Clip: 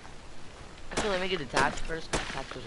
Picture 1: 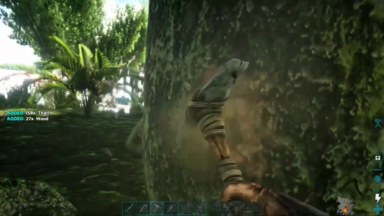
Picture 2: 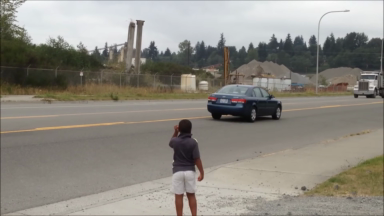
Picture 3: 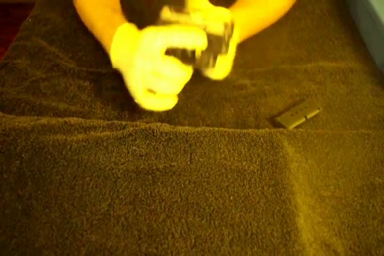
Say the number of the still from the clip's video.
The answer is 1